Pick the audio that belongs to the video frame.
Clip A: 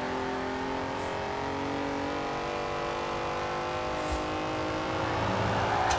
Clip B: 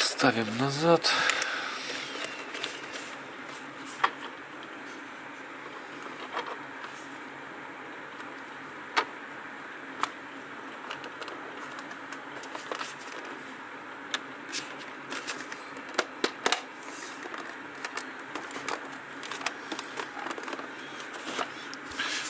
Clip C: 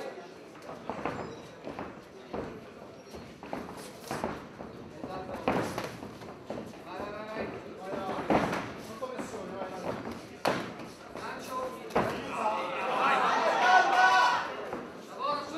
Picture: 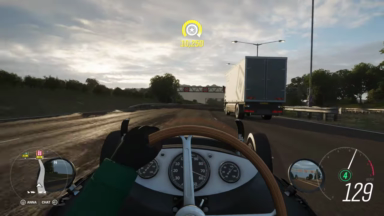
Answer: A